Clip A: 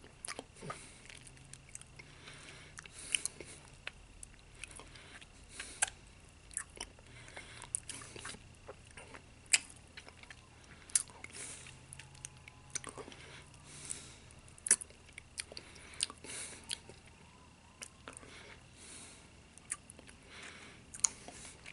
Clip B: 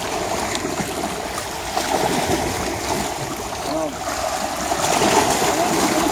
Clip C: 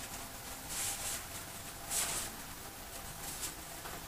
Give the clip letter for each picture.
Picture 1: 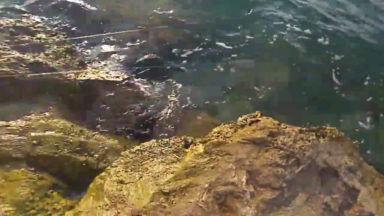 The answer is B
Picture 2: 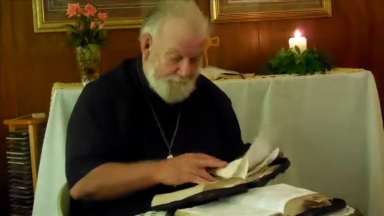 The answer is C